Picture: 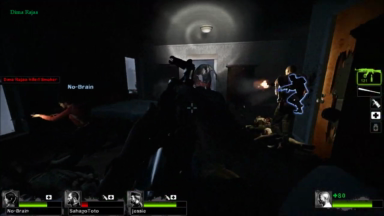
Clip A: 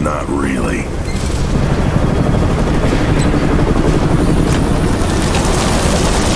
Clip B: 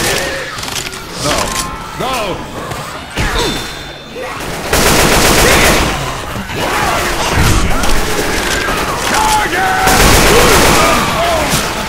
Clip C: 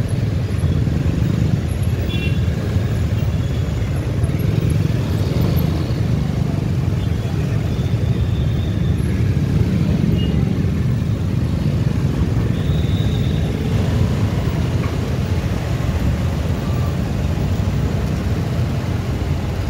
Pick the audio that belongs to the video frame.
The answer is B